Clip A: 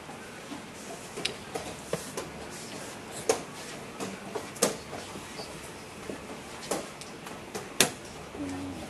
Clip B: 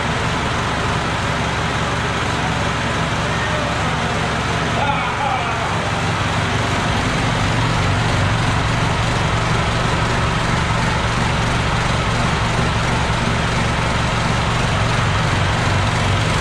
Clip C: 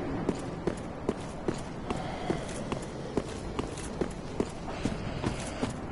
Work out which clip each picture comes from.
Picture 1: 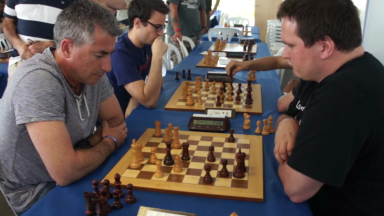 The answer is A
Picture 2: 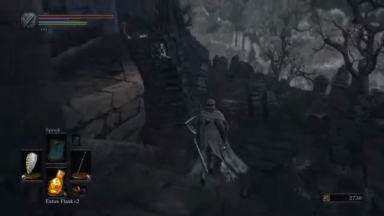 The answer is C